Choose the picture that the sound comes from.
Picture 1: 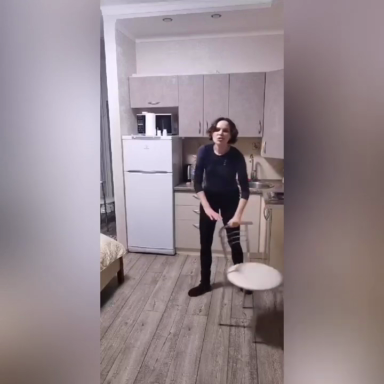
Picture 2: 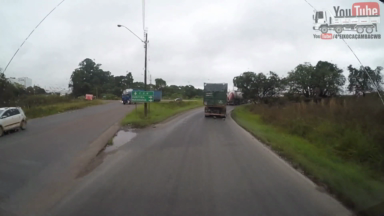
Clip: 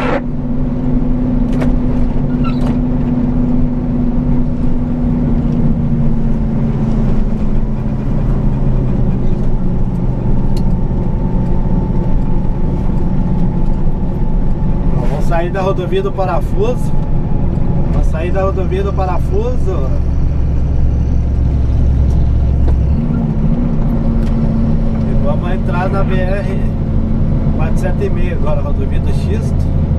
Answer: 2